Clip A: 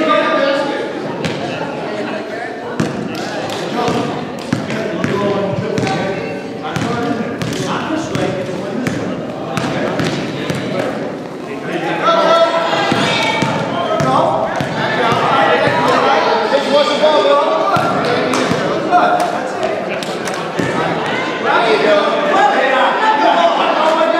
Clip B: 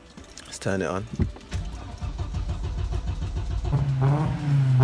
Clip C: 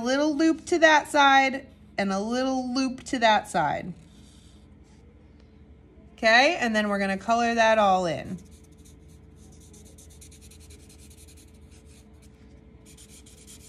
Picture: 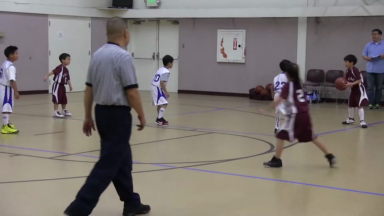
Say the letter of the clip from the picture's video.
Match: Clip A